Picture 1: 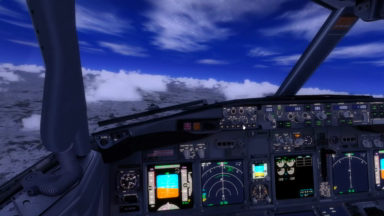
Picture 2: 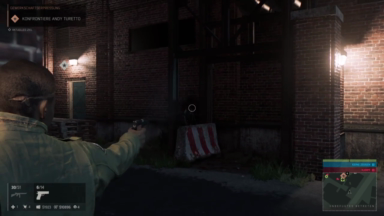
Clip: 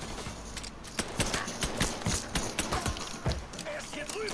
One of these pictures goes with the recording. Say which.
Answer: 2